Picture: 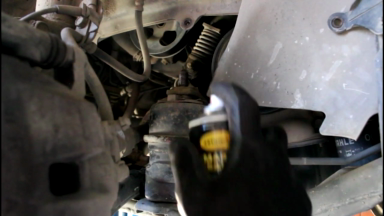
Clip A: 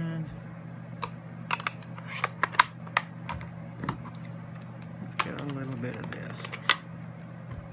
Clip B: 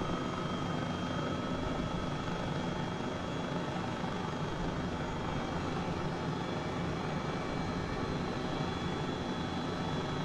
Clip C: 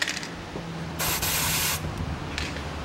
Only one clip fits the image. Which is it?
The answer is C